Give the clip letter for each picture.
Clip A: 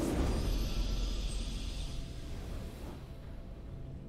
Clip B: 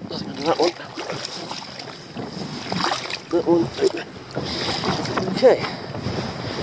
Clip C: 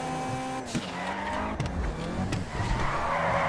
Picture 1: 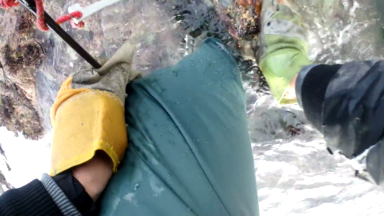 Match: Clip B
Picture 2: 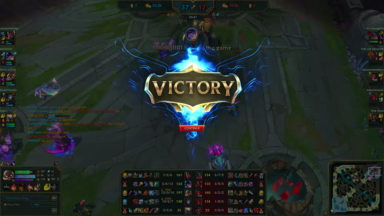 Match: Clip A